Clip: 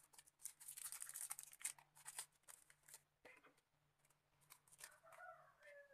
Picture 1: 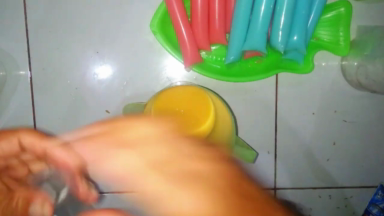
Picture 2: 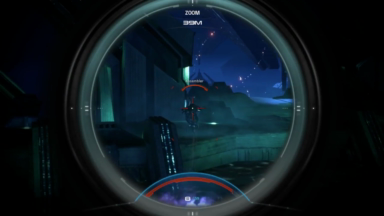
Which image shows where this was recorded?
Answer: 1